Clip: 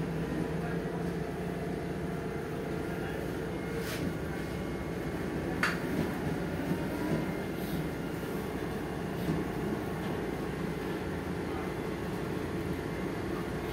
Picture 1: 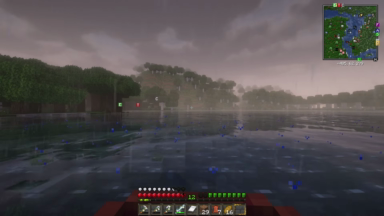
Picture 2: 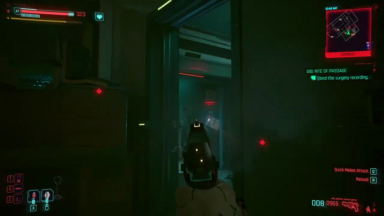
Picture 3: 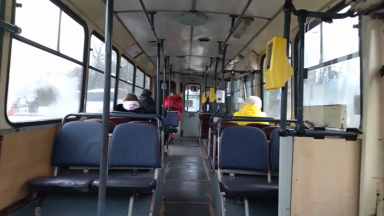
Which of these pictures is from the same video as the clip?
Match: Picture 3